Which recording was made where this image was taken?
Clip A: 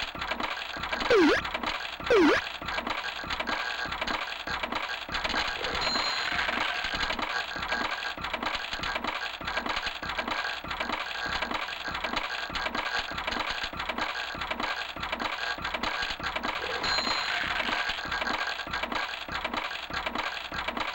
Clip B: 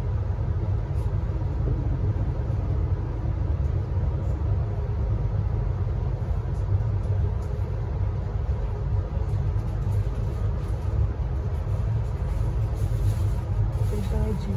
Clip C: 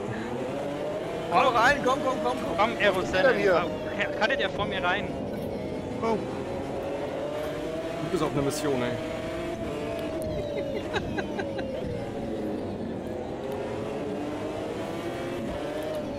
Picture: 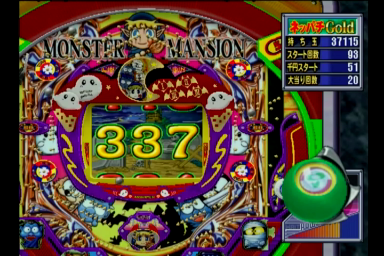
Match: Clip A